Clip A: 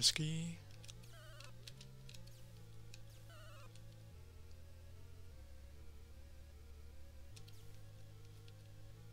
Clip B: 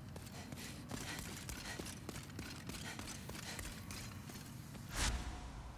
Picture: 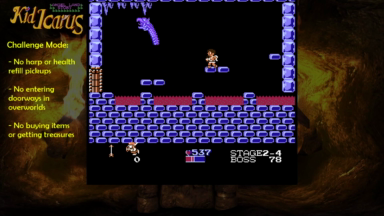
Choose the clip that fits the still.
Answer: A